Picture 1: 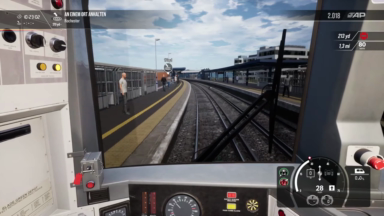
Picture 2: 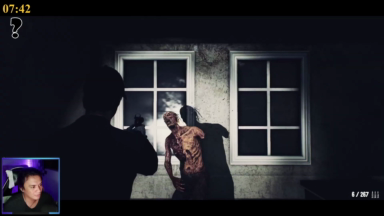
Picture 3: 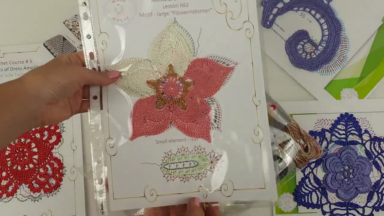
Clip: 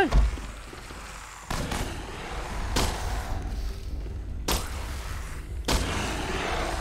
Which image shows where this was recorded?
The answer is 2